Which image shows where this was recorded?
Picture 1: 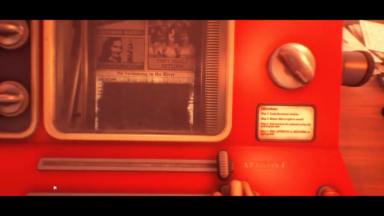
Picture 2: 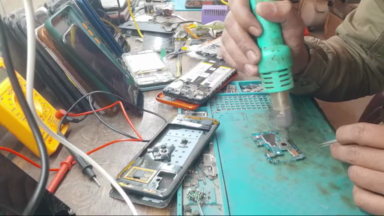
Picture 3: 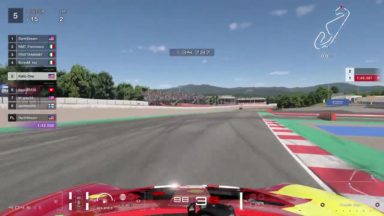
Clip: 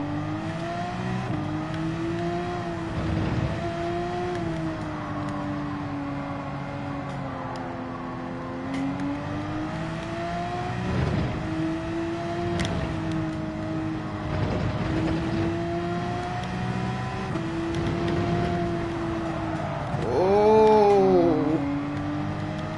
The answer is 3